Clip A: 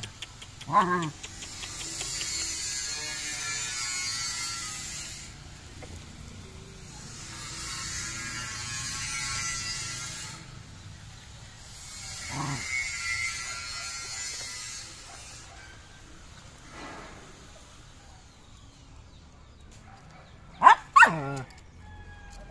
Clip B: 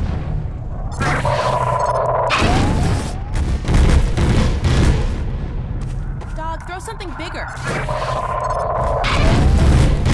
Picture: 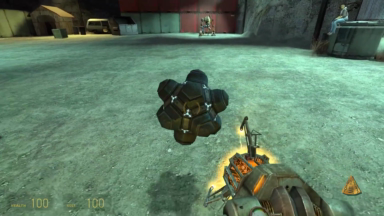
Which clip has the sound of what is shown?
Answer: B